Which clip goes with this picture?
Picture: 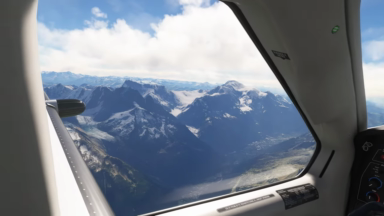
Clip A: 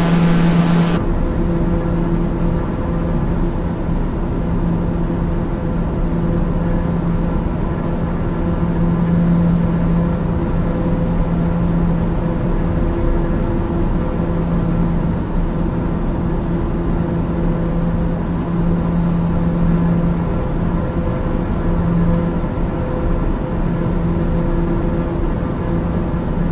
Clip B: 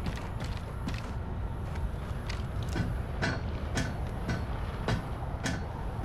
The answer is A